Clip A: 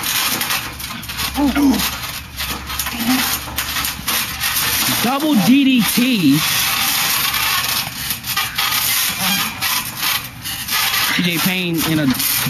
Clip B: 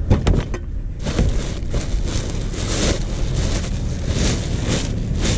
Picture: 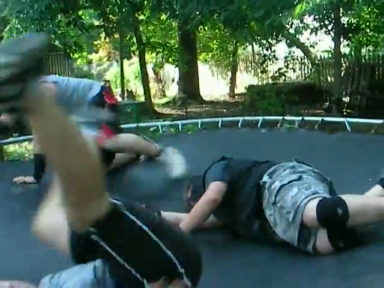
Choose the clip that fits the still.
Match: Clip A